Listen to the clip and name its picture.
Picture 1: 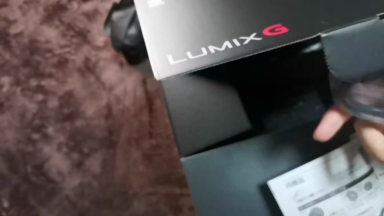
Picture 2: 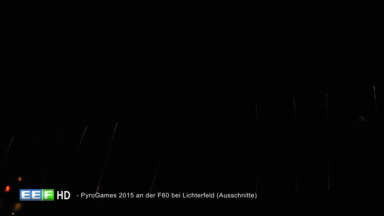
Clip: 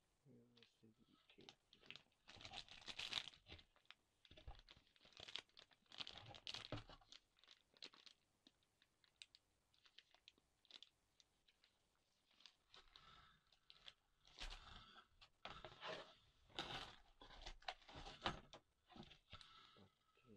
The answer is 1